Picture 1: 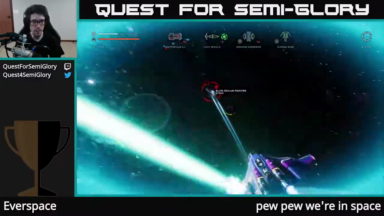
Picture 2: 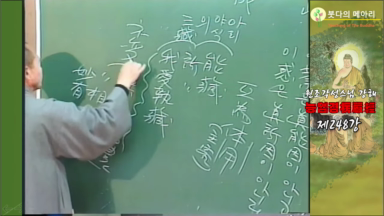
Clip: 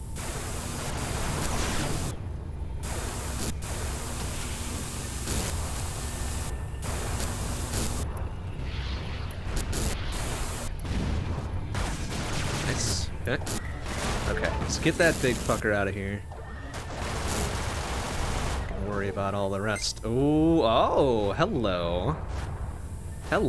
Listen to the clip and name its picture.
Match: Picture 1